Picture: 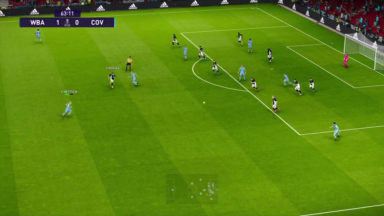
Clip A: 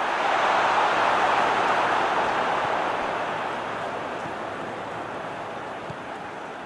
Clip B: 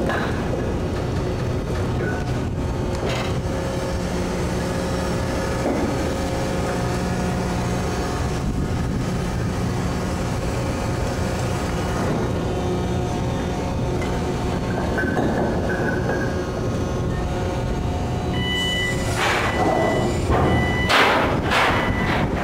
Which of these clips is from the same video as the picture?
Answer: A